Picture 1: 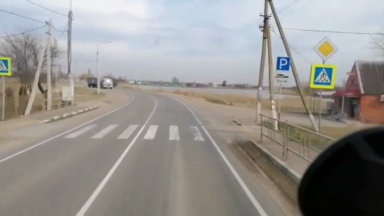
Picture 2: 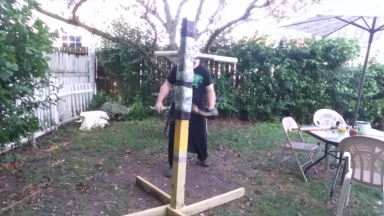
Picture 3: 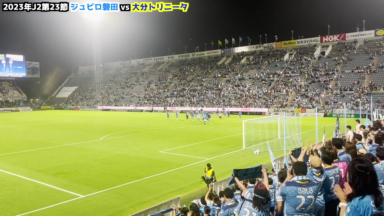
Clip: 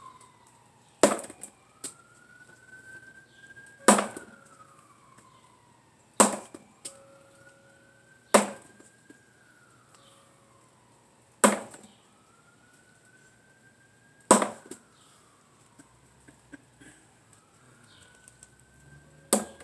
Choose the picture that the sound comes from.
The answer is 2